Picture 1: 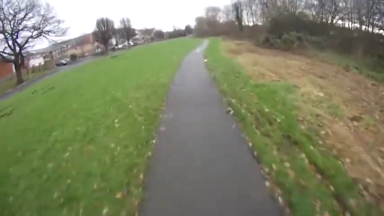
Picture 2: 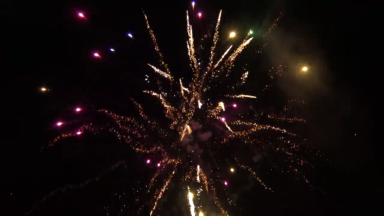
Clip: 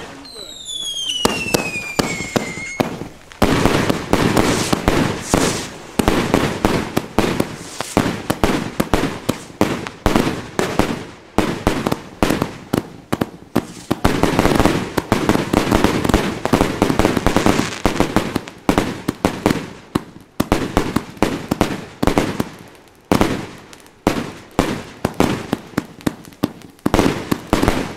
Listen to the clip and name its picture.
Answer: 2